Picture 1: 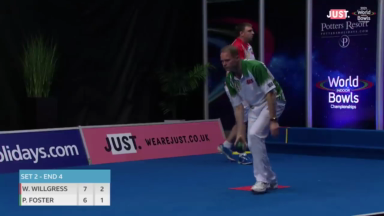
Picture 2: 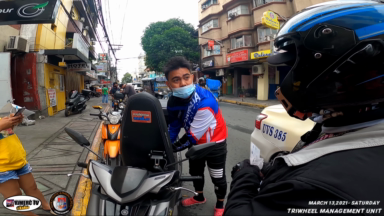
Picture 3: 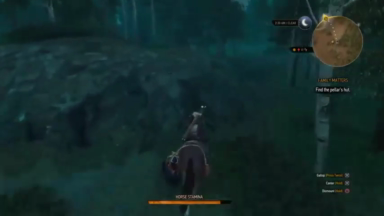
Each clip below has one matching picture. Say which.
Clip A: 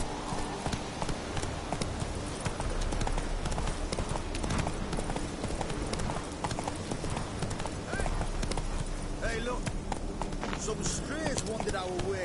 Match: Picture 3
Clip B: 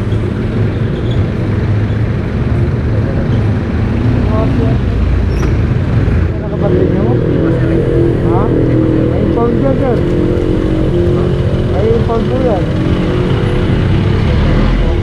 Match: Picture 2